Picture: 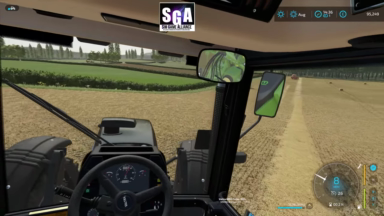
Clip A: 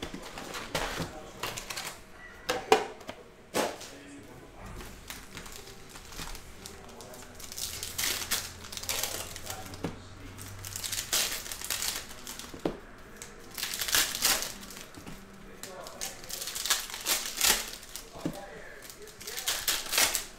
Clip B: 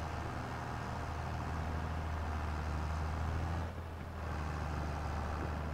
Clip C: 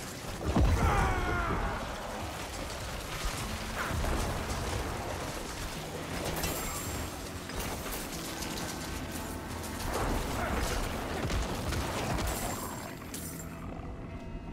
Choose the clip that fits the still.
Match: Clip B